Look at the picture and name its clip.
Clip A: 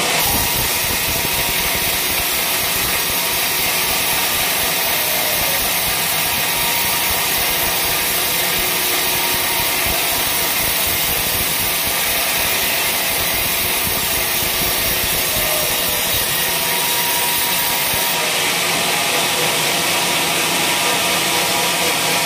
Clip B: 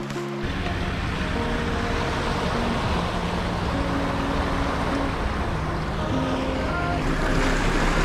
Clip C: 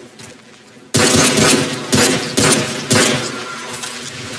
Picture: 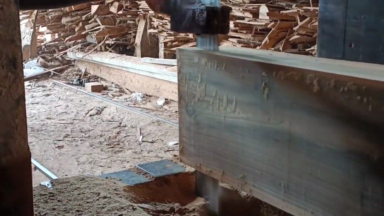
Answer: A